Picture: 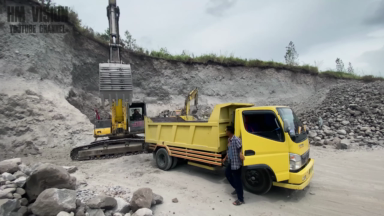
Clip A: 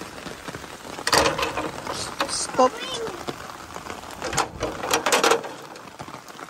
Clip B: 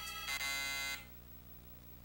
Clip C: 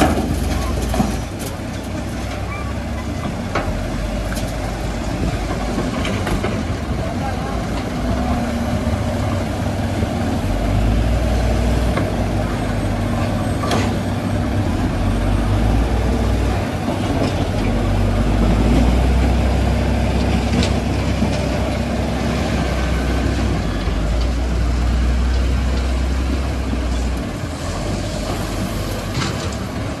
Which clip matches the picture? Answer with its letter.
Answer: C